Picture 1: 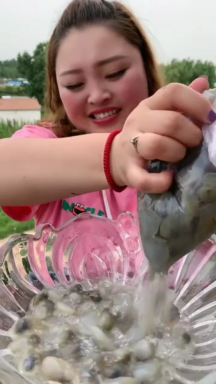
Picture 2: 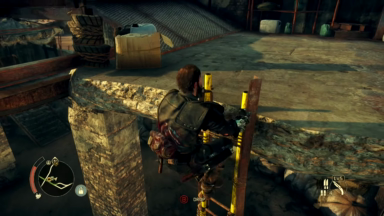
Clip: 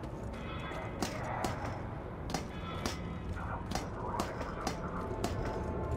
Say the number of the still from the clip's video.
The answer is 2